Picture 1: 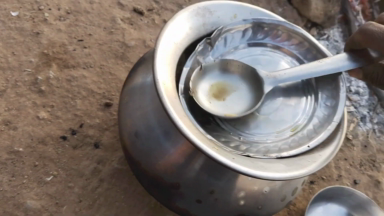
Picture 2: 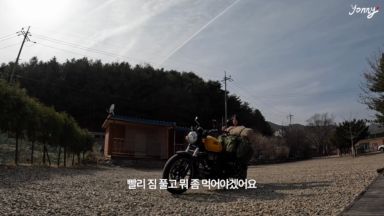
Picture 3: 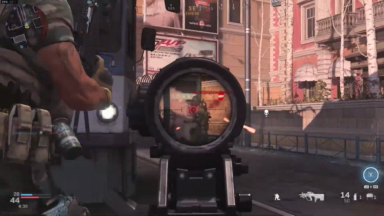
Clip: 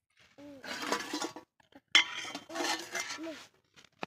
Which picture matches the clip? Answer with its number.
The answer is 1